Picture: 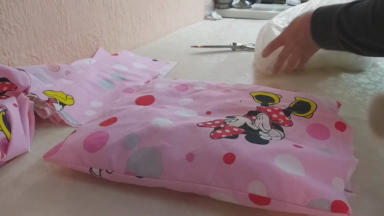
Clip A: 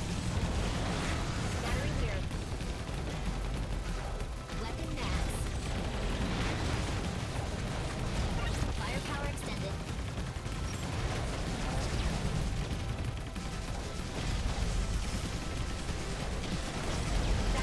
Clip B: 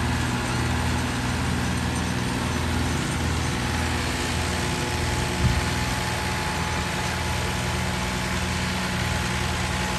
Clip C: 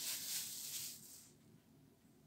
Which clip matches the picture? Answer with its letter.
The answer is C